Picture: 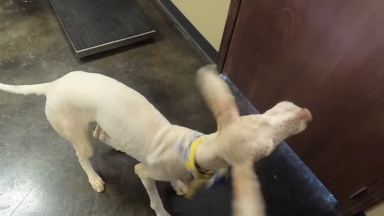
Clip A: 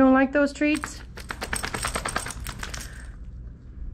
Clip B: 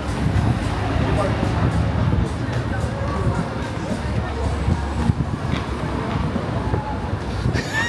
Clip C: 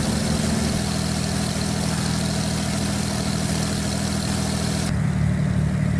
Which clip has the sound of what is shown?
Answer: A